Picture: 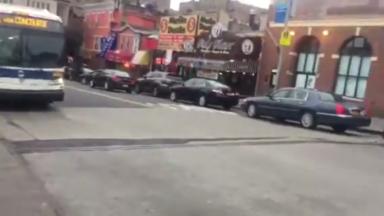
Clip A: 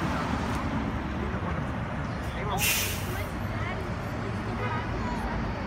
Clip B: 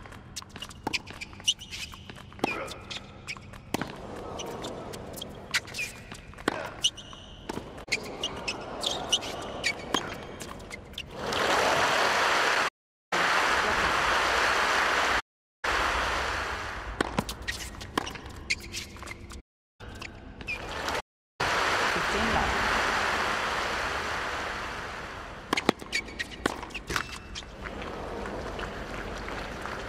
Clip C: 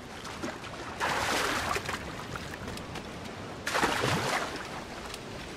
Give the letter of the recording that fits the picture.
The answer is A